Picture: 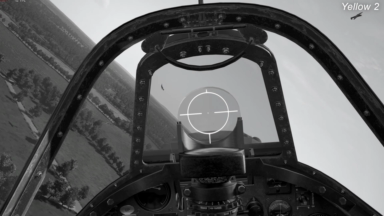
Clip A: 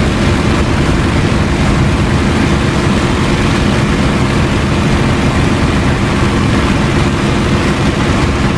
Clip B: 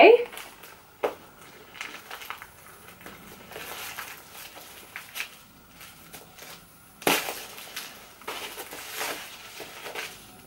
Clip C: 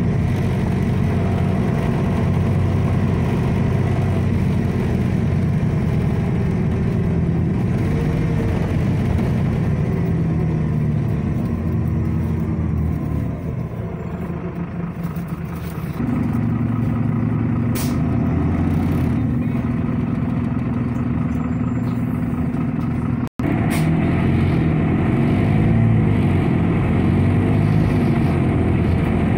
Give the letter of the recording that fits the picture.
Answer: A